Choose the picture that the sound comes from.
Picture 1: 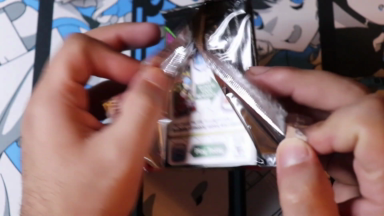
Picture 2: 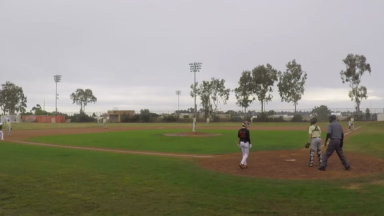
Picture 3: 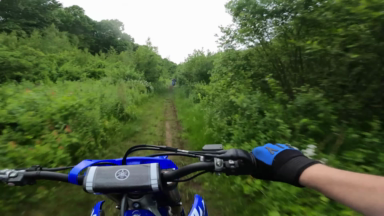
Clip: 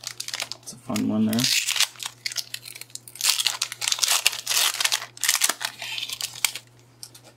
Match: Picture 1